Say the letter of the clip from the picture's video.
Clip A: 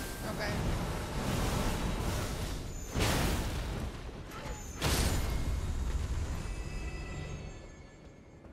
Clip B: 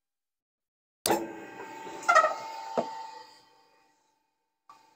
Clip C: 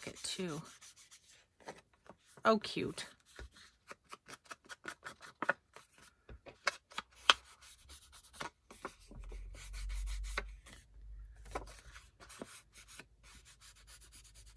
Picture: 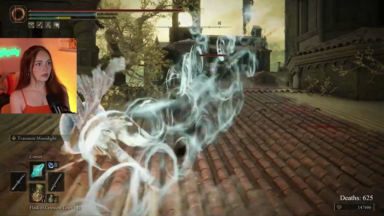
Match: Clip A